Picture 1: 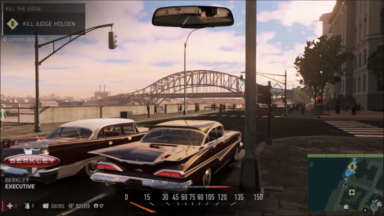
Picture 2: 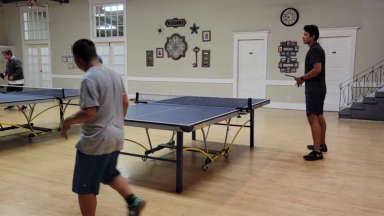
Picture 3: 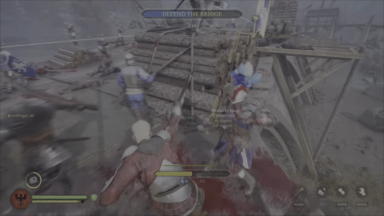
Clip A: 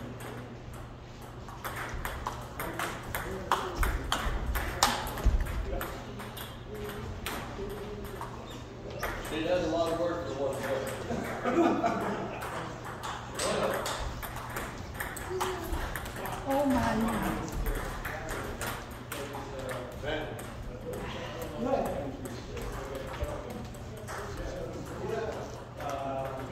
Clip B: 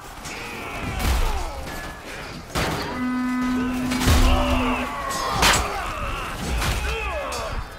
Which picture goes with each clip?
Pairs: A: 2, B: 3